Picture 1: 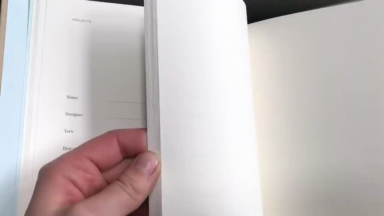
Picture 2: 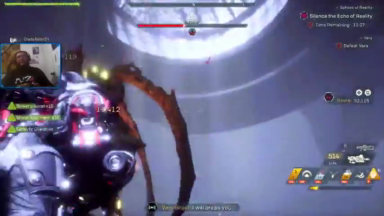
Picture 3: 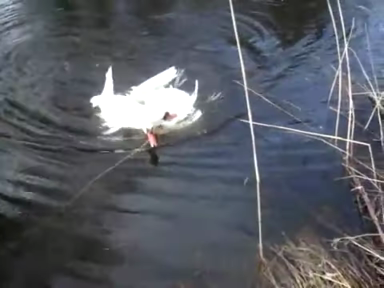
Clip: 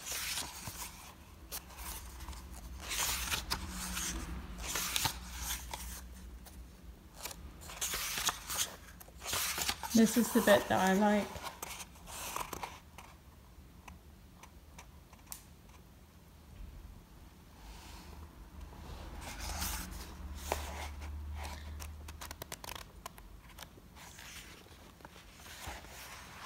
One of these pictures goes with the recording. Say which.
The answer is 1